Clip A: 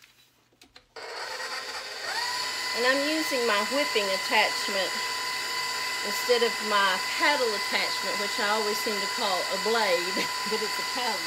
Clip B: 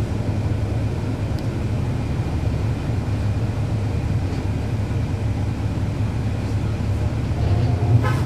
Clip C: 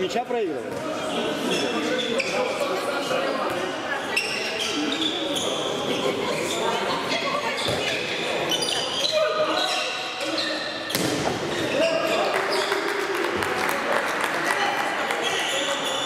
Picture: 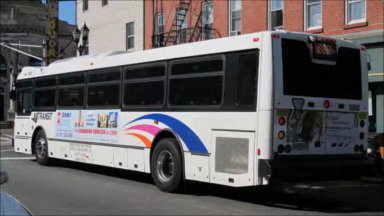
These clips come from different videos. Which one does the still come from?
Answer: B